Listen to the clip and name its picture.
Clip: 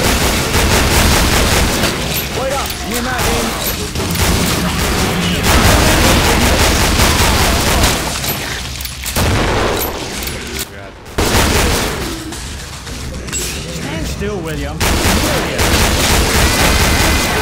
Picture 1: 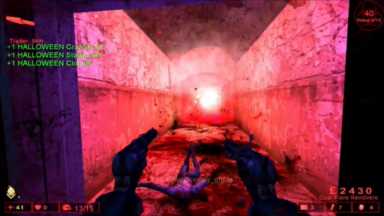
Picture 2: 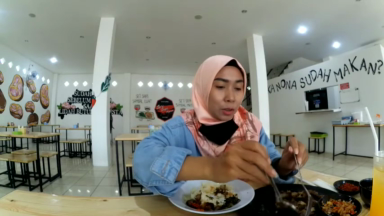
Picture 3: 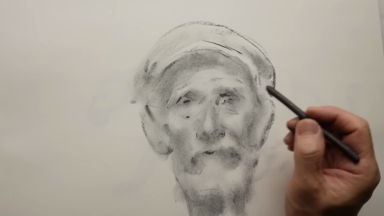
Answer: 1